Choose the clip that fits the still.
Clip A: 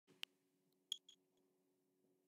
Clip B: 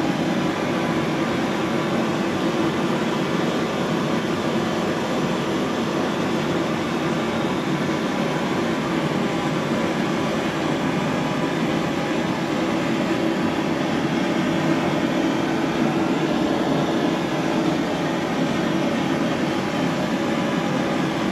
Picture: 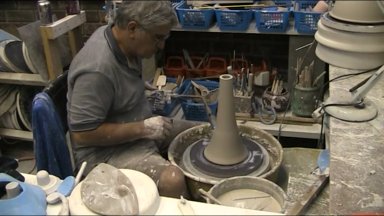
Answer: B